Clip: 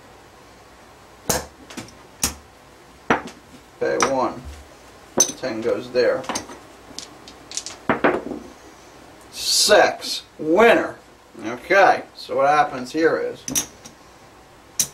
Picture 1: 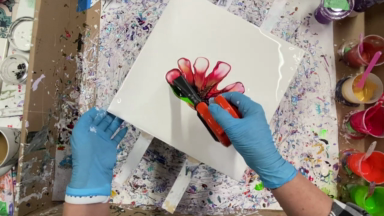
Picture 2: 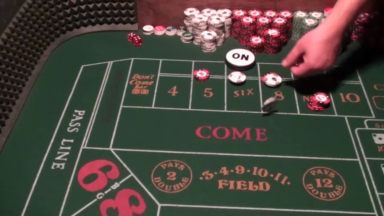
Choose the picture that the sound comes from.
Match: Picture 2